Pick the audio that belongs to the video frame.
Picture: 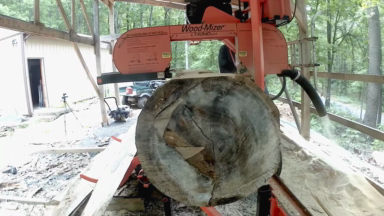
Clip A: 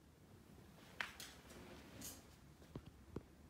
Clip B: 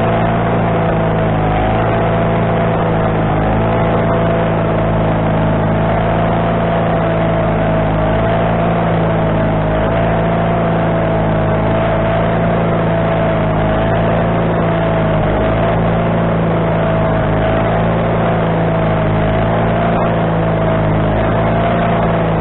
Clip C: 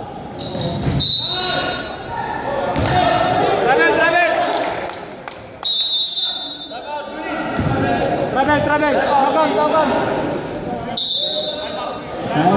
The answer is B